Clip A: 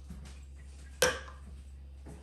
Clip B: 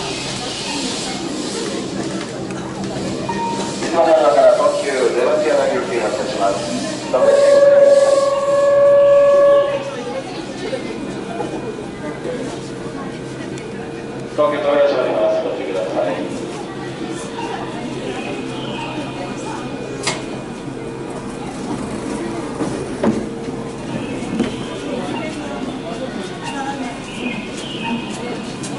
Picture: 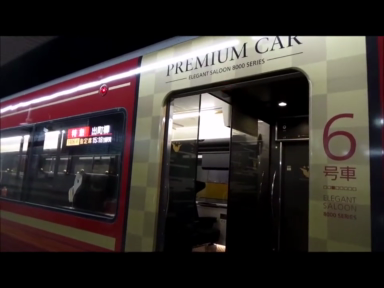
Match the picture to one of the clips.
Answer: B